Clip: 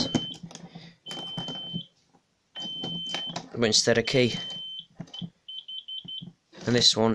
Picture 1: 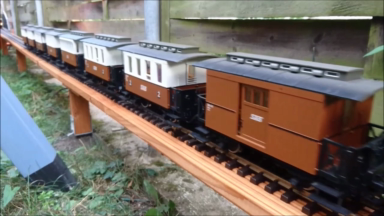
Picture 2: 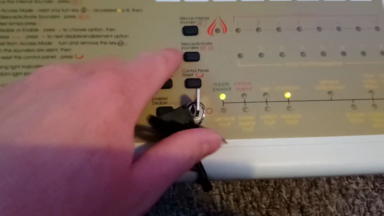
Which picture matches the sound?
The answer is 2